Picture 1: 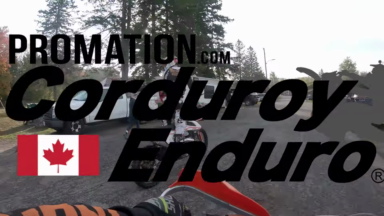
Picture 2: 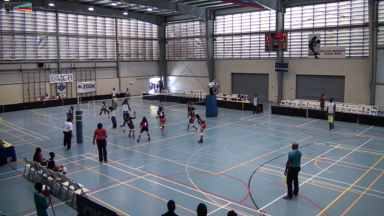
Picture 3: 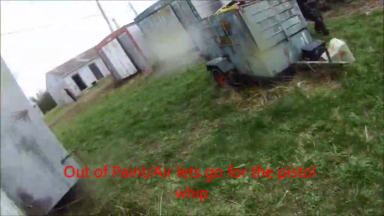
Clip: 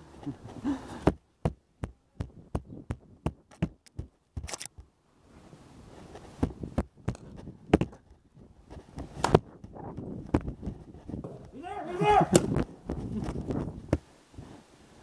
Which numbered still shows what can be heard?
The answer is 3